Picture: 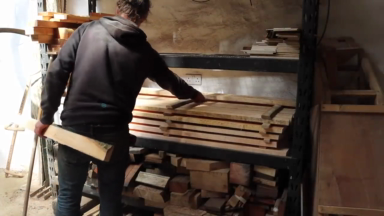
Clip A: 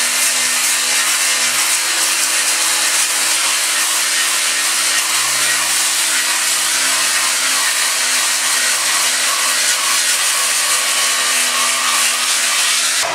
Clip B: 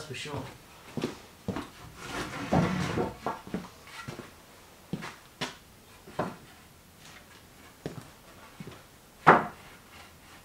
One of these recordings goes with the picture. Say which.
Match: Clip B